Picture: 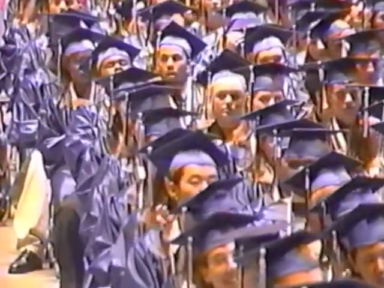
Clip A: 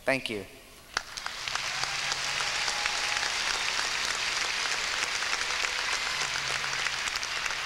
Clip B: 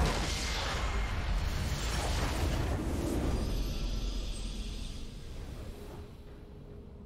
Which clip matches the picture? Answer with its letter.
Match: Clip A